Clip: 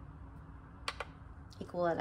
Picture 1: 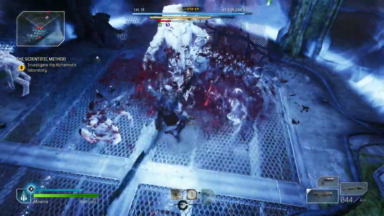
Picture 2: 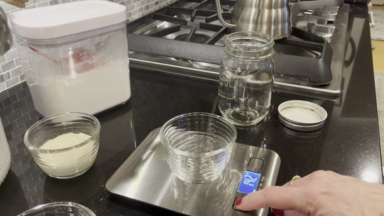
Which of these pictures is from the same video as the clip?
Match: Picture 2